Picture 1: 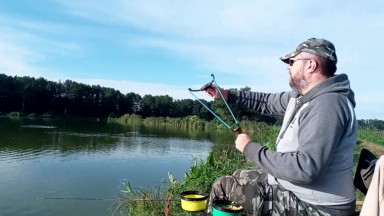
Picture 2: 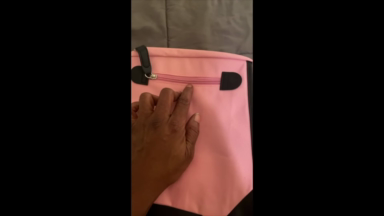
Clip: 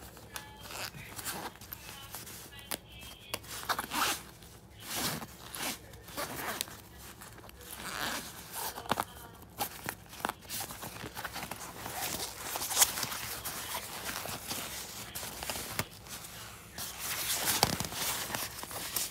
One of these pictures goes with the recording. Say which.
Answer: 2